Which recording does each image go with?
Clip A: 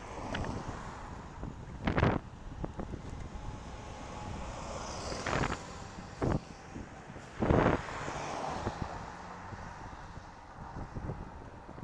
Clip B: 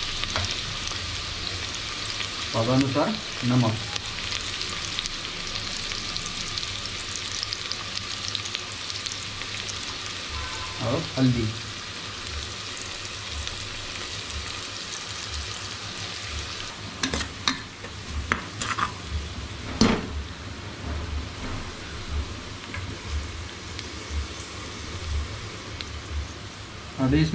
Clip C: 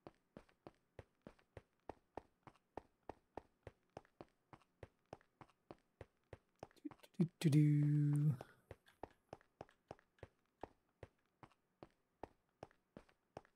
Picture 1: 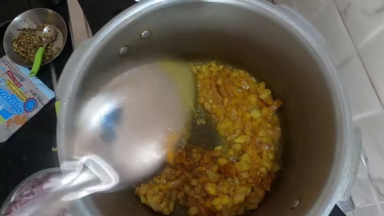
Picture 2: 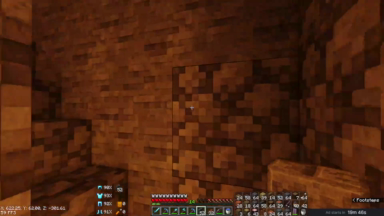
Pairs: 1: B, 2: C